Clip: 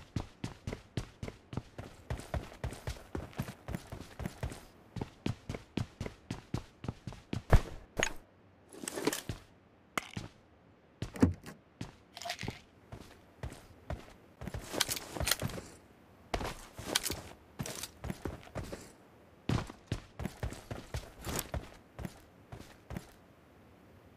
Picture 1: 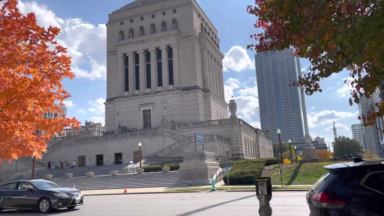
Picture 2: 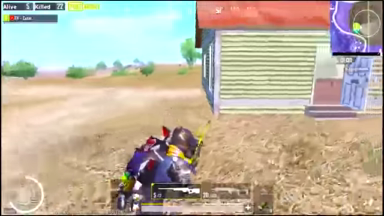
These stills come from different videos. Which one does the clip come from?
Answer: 2